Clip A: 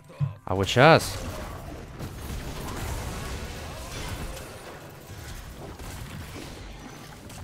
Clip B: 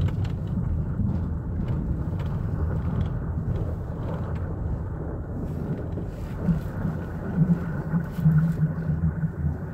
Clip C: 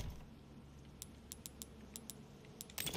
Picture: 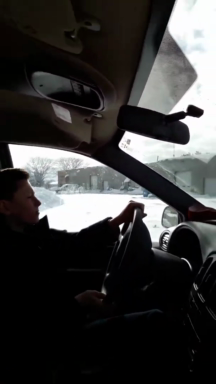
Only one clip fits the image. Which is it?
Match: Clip B